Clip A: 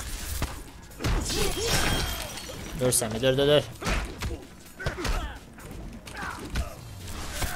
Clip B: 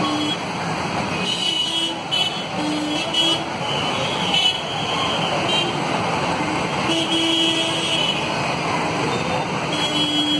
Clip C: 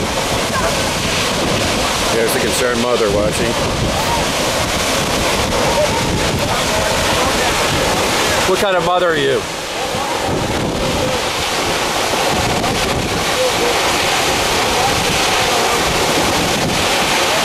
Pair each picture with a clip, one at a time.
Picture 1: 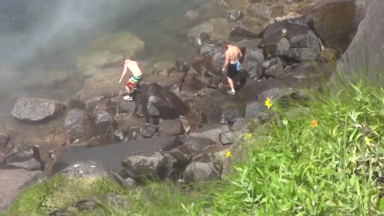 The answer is C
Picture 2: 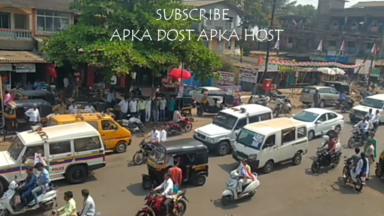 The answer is B